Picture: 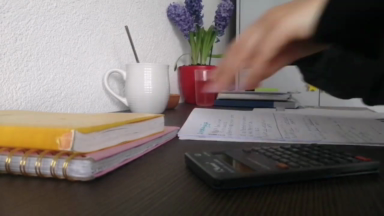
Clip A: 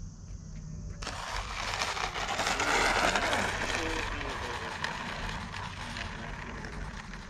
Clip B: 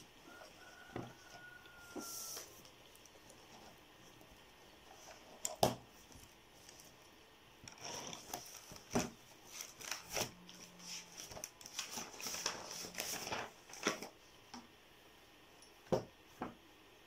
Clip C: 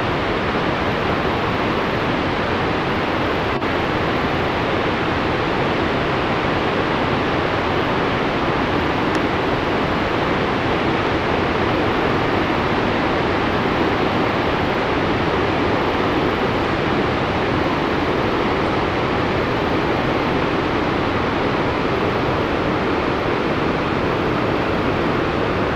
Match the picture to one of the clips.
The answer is B